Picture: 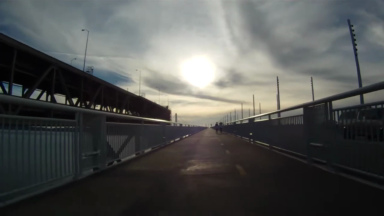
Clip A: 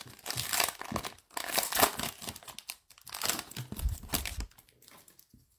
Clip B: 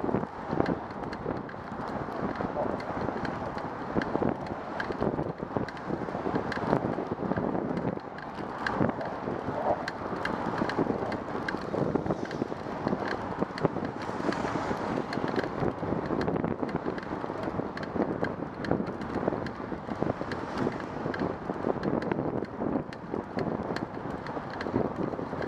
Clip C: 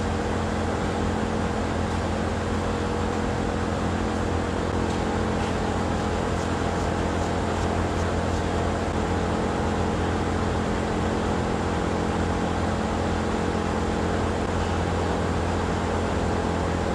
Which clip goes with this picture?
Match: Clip B